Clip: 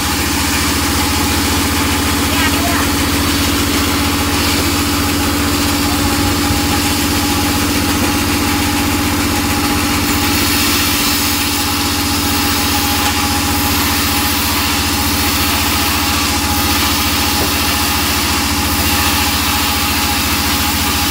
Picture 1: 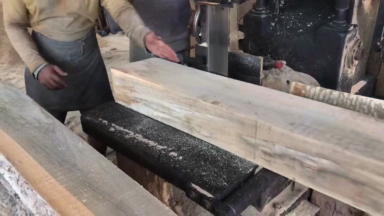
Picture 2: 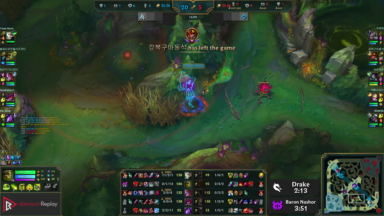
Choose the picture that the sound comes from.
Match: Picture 1